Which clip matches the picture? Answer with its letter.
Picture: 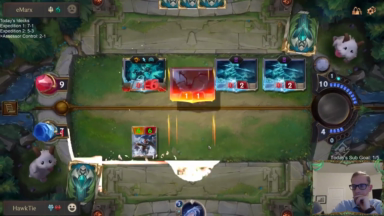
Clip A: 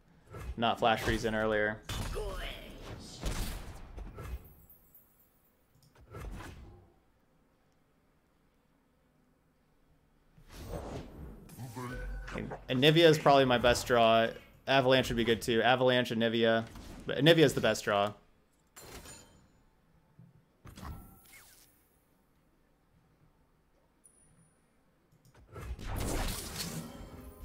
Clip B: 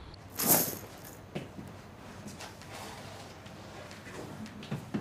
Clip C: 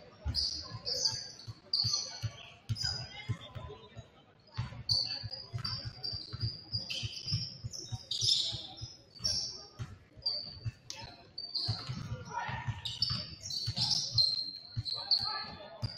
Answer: A